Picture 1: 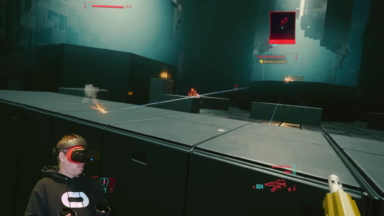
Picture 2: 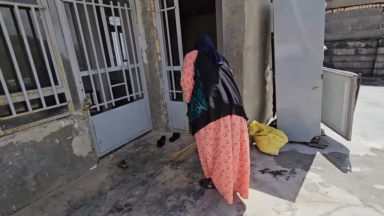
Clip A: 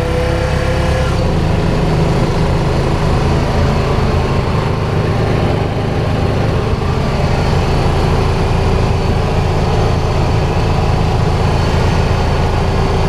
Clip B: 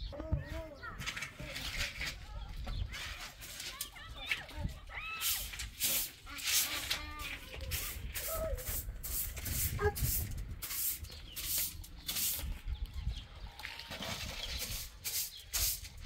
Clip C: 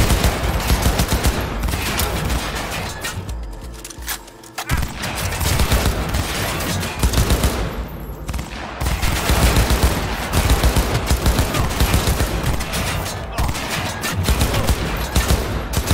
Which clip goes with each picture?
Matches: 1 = C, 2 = B